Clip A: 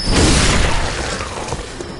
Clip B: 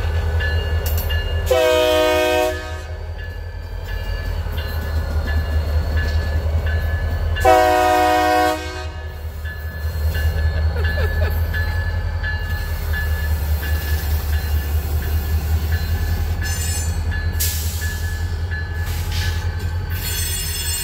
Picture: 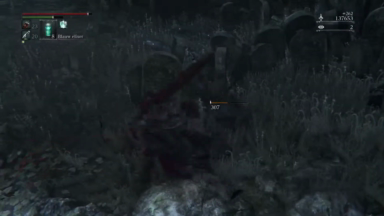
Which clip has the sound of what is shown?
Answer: A